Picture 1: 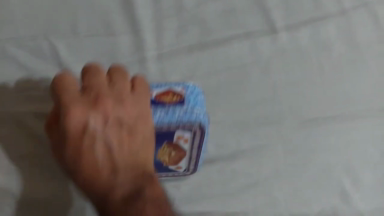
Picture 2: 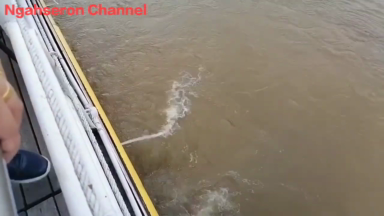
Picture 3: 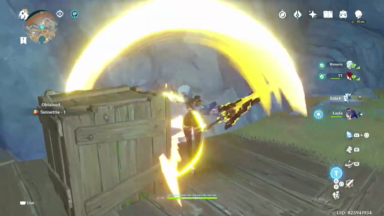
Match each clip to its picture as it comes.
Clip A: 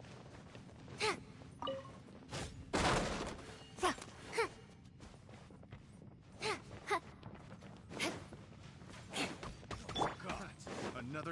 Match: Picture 3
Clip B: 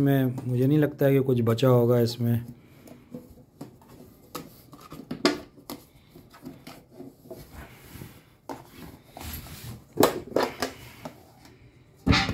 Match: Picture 1